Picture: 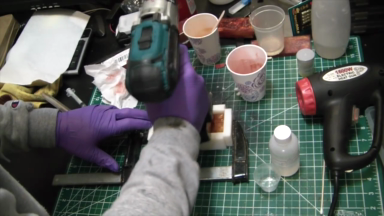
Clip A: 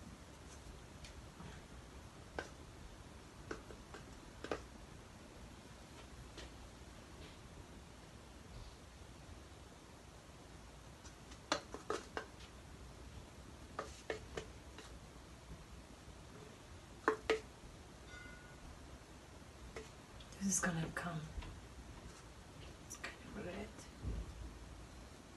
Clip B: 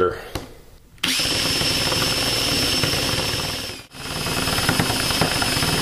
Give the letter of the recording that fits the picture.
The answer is B